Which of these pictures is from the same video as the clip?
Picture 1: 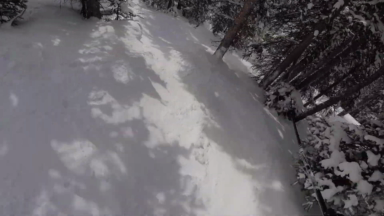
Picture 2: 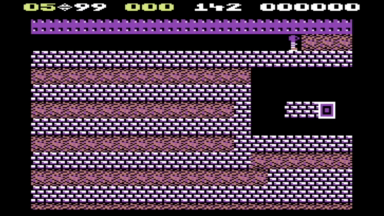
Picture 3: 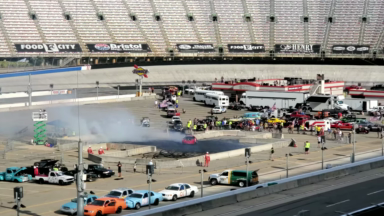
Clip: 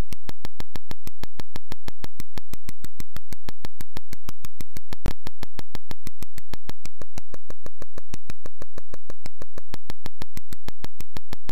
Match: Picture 2